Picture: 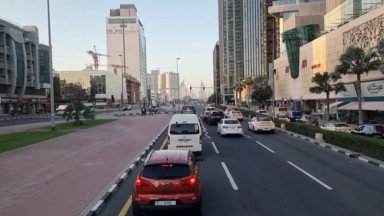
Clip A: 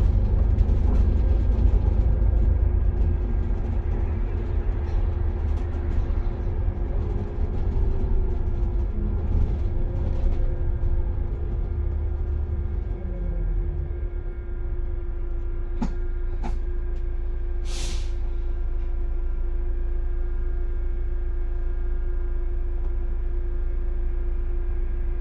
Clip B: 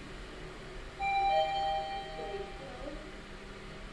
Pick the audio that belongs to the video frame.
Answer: A